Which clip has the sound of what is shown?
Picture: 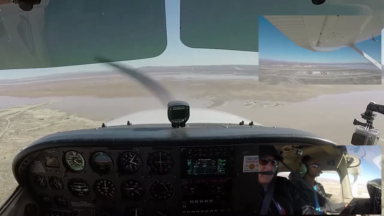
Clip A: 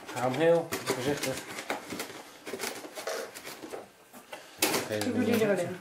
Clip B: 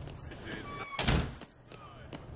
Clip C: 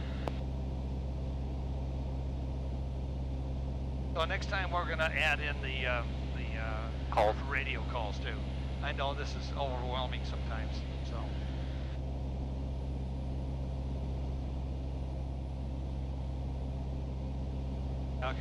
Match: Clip C